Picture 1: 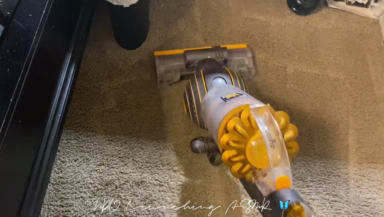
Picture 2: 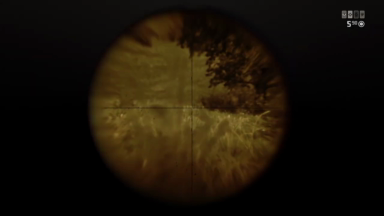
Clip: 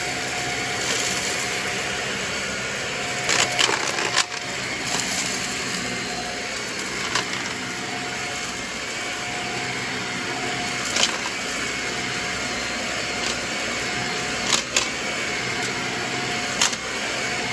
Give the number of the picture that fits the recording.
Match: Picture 1